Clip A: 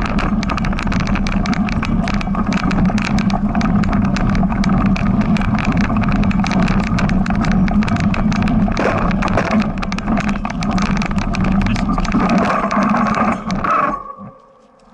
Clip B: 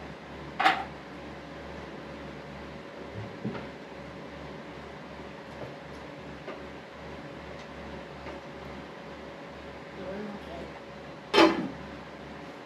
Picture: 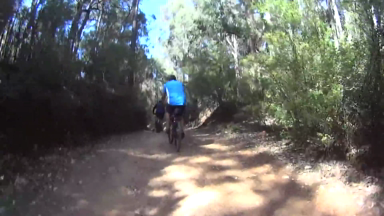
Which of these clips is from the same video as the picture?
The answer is A